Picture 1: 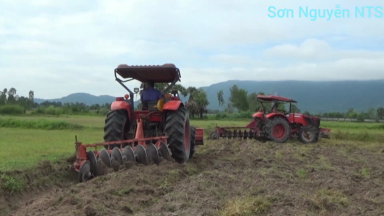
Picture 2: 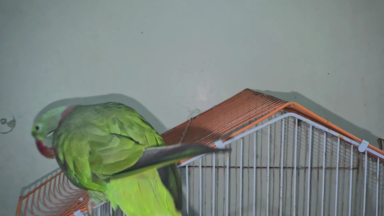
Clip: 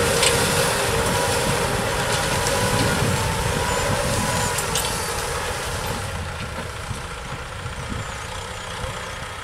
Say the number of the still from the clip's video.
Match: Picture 1